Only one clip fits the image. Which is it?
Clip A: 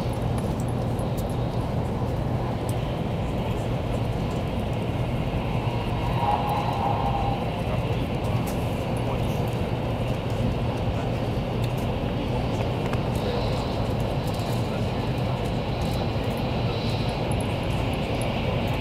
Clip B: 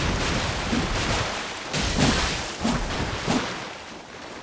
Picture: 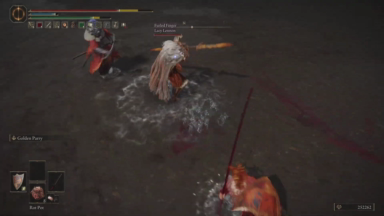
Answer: B